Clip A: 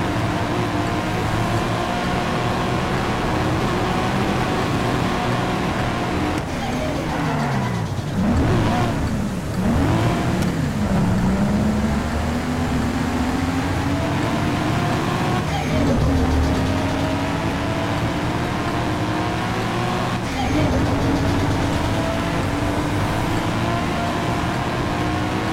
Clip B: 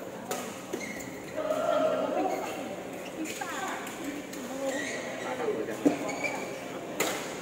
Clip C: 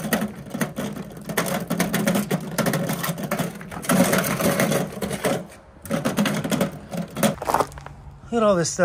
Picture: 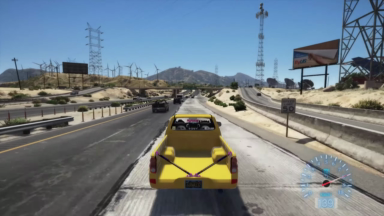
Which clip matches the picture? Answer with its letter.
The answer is A